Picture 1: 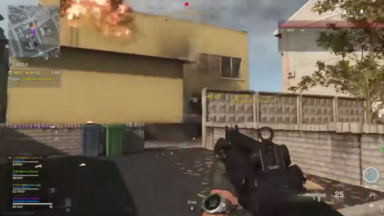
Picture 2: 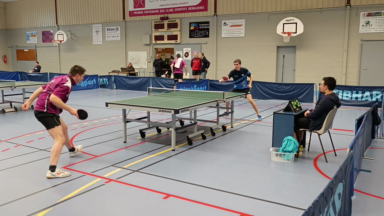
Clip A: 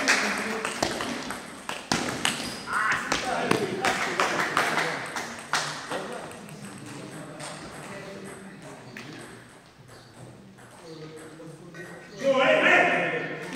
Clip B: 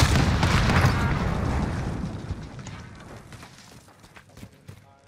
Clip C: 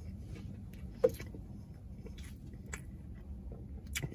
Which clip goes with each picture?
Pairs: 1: B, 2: A